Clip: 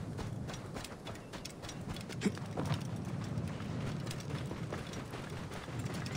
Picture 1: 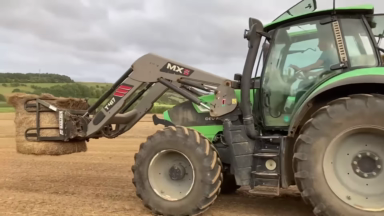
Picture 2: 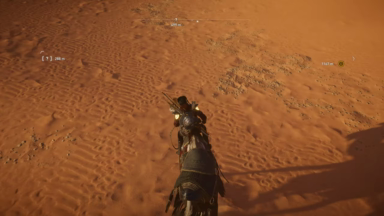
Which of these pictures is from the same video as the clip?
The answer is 2